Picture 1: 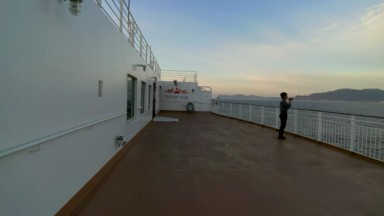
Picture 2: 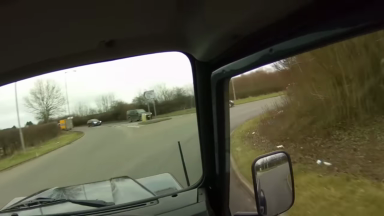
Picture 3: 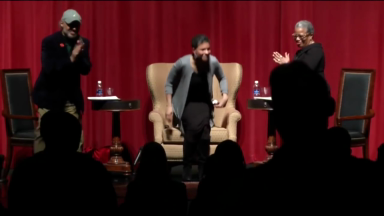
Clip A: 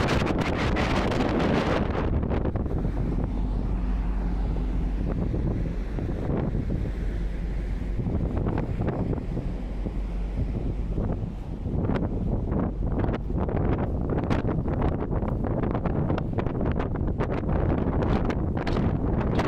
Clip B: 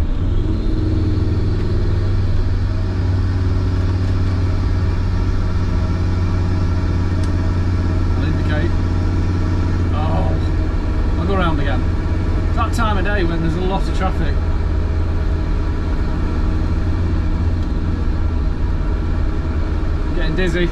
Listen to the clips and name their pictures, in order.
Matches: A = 1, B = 2